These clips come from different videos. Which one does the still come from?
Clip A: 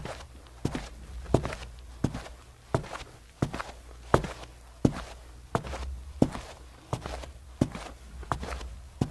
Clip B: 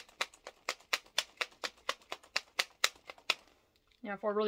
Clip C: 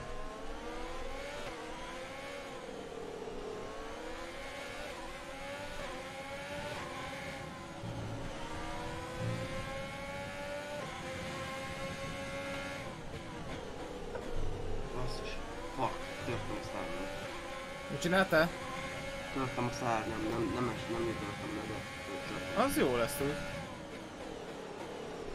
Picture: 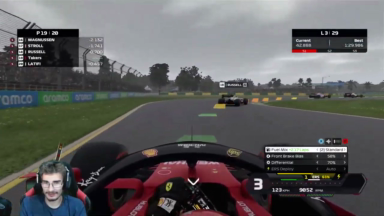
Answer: C